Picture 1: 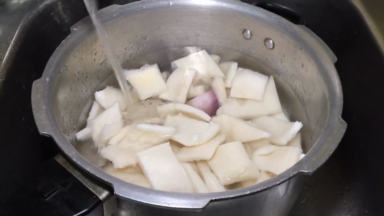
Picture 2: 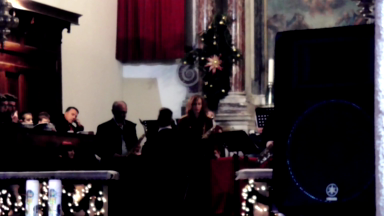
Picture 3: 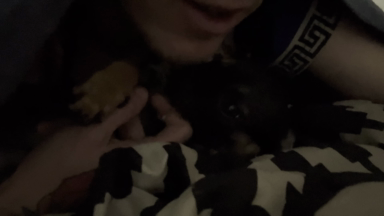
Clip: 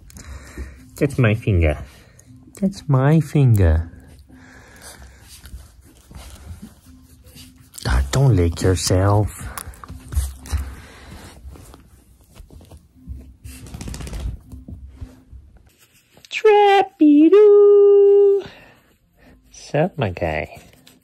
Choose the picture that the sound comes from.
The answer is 3